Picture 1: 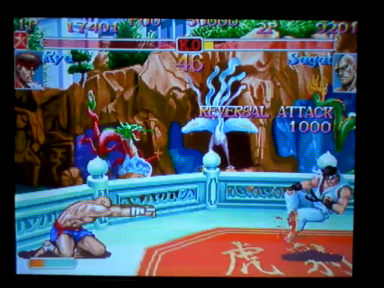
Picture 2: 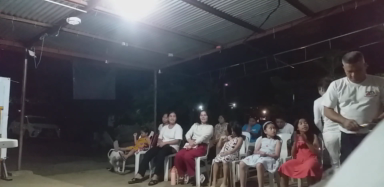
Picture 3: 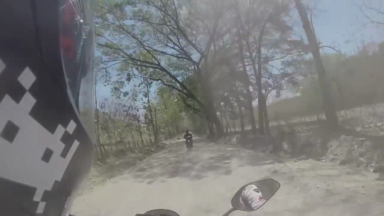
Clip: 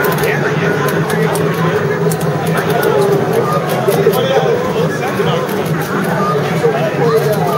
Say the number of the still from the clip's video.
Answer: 1